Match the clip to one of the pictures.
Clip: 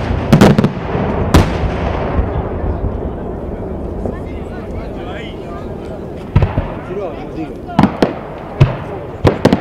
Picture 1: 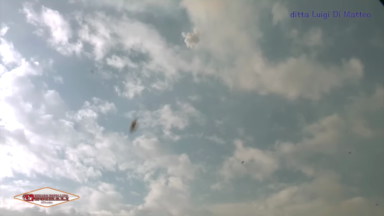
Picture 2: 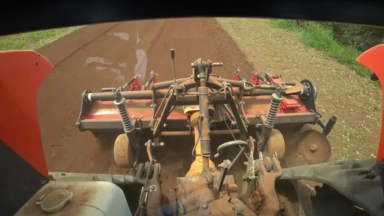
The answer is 1